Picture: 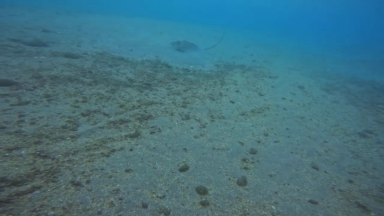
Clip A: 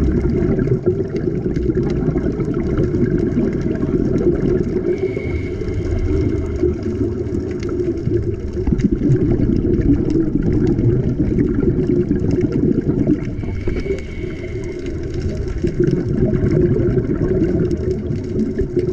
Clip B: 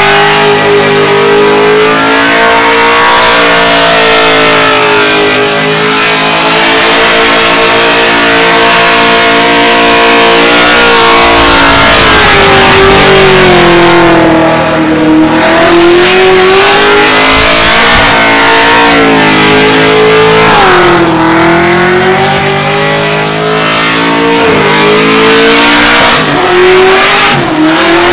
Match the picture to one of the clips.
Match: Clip A